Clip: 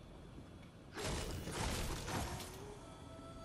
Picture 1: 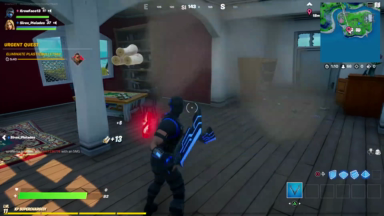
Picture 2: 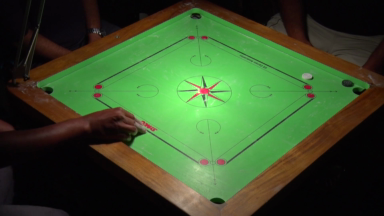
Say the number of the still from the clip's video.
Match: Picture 1